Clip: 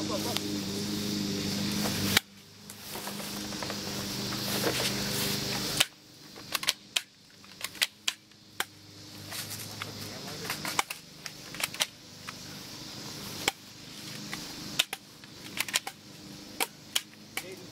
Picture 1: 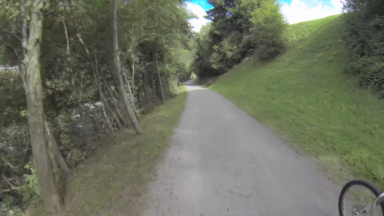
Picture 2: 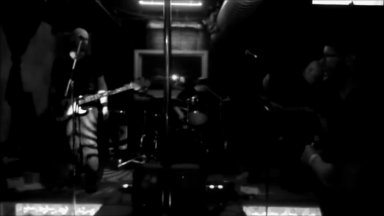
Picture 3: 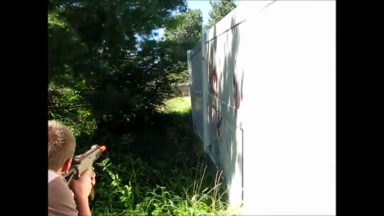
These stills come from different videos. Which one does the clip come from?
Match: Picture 3